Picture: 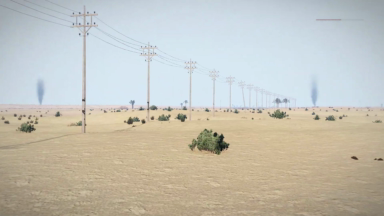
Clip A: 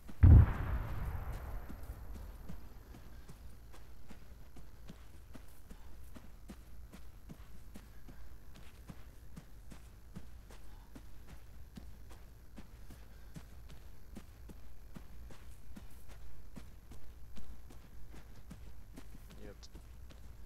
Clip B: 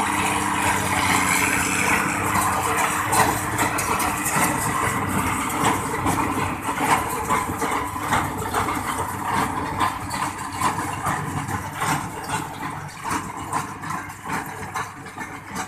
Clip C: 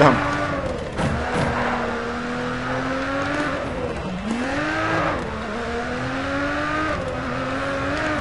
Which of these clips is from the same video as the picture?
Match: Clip A